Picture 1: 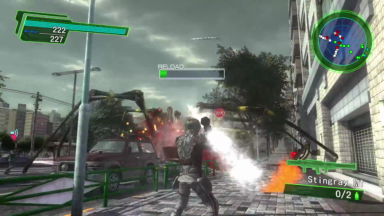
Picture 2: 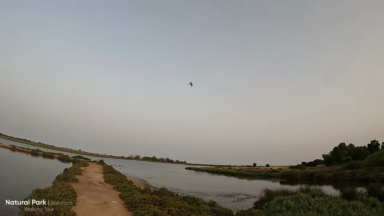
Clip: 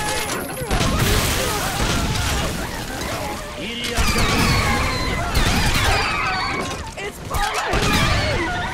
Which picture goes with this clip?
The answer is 1